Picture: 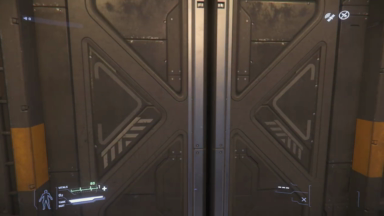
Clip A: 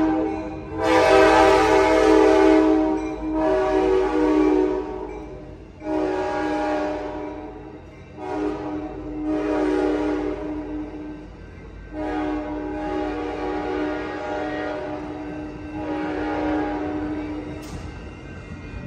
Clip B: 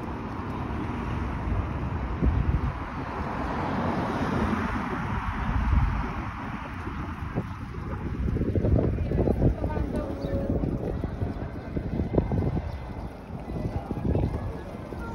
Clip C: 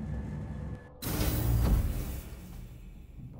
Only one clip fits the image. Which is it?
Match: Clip C